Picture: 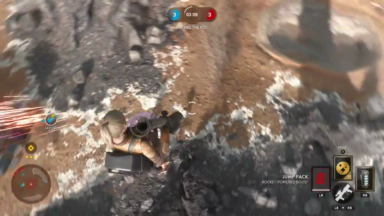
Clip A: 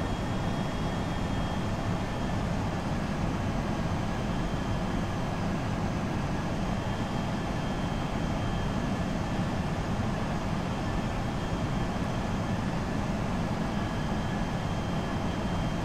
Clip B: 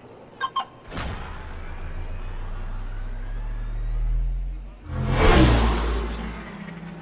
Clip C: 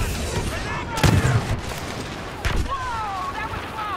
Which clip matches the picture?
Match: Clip C